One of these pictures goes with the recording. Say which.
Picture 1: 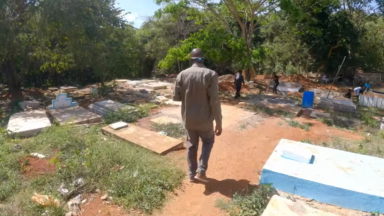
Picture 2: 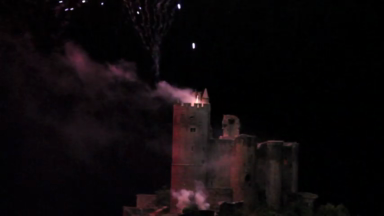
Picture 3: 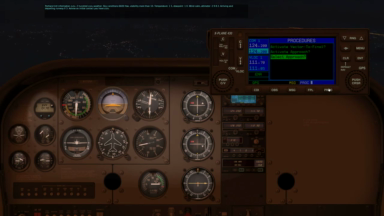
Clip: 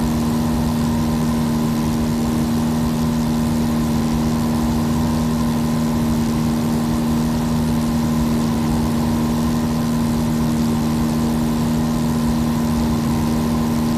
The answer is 3